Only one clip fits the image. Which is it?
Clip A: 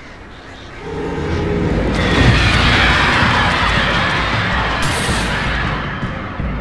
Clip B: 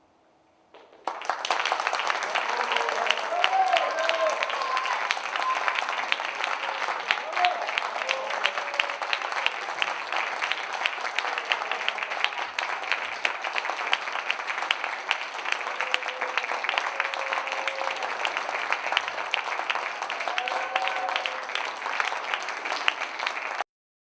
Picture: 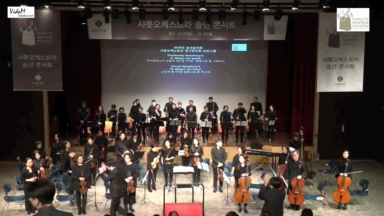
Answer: B